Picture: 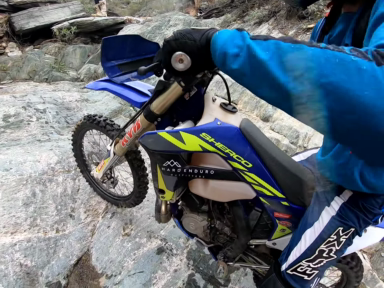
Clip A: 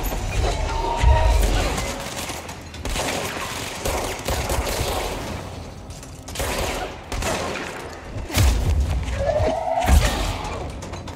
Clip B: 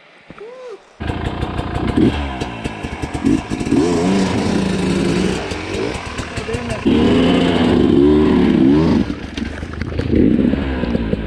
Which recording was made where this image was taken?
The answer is B